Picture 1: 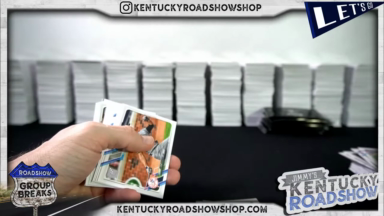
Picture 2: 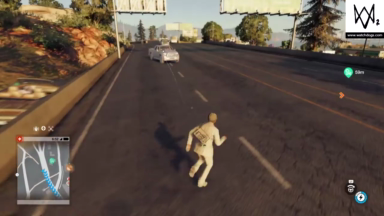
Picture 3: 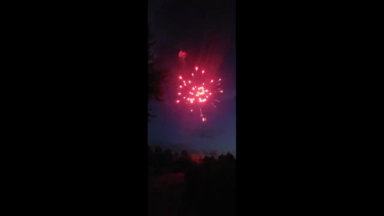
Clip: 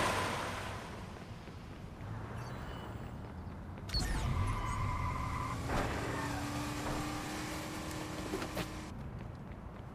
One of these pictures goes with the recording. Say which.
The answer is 2